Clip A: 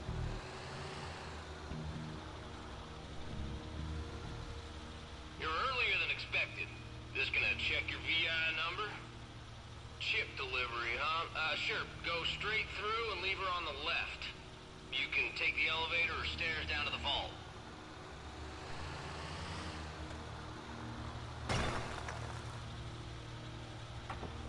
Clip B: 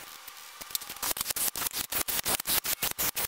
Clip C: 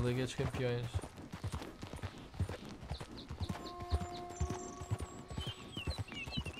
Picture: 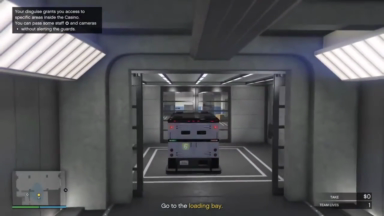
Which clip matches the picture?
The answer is A